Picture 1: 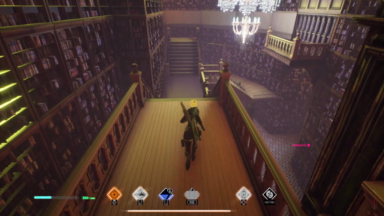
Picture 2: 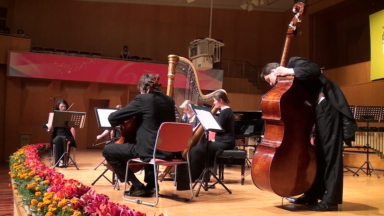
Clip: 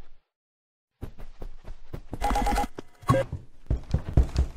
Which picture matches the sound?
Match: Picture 1